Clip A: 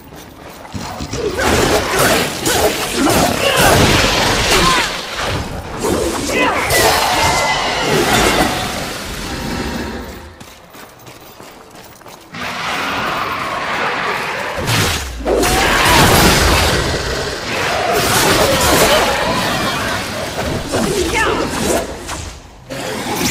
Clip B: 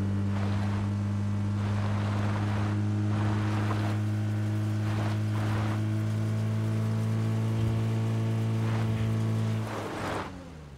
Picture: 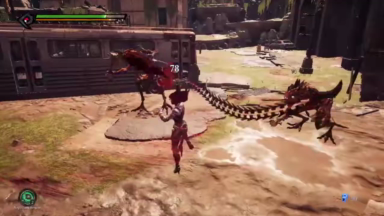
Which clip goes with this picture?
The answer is A